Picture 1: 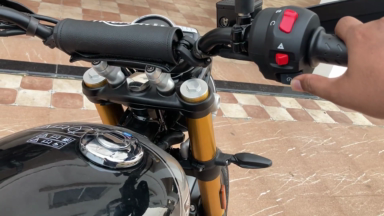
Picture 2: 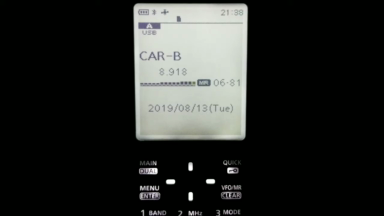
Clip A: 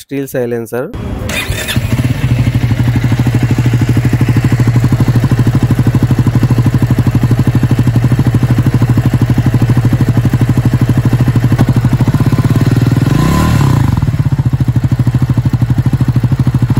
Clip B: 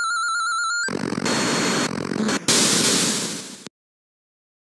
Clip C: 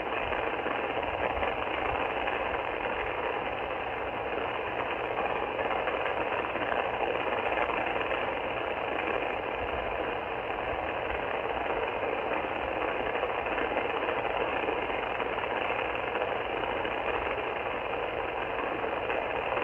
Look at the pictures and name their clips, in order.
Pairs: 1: A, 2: C